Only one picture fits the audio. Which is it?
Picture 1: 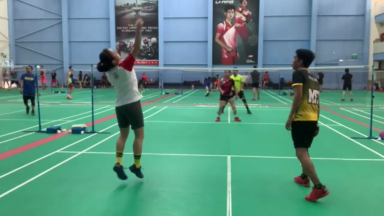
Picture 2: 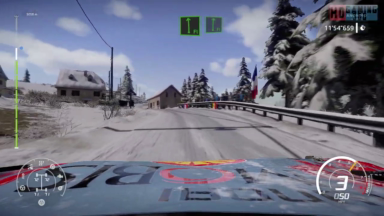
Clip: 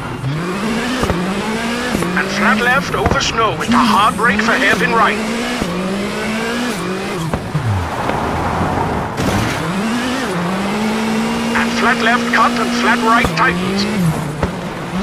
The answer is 2